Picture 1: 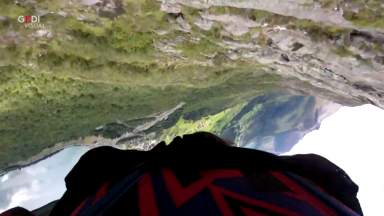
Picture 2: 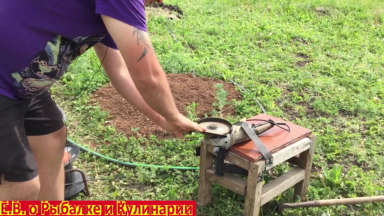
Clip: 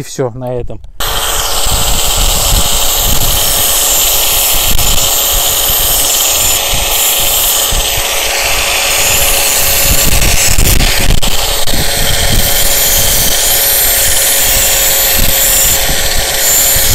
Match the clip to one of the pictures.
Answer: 2